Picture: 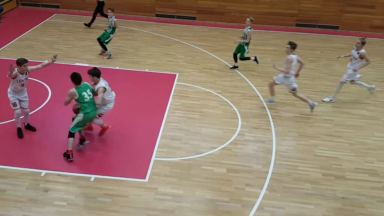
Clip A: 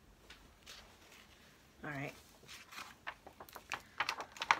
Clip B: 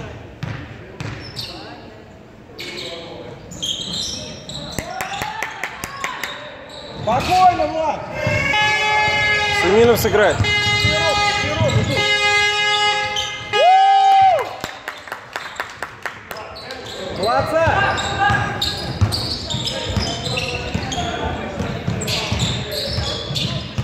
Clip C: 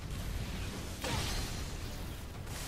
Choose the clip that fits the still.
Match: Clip B